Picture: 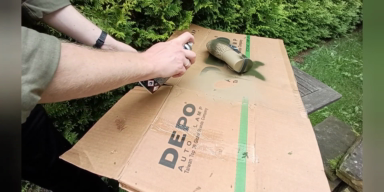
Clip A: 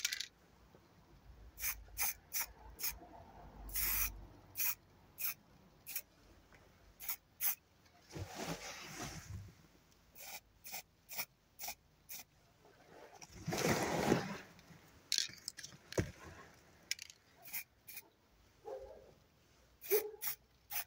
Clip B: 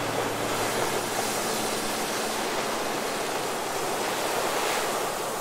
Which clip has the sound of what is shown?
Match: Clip A